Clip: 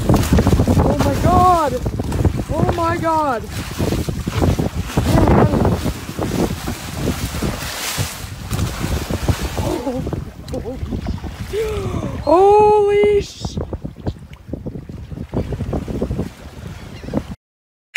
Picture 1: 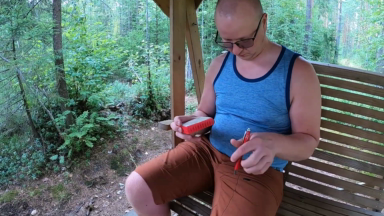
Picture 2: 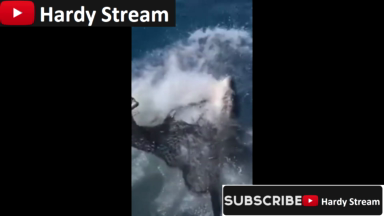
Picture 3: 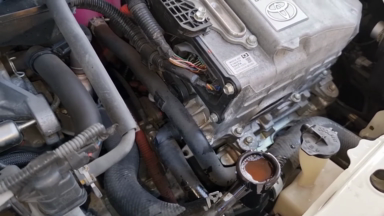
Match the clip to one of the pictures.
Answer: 2